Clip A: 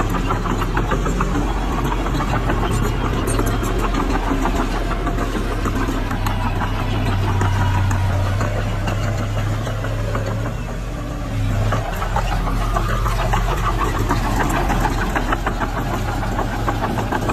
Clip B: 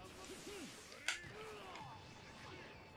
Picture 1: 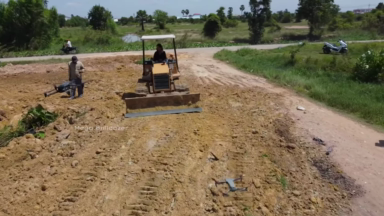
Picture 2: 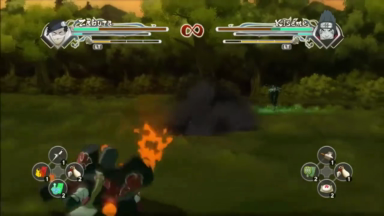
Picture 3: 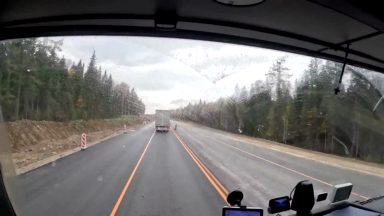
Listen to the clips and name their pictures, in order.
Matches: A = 1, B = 2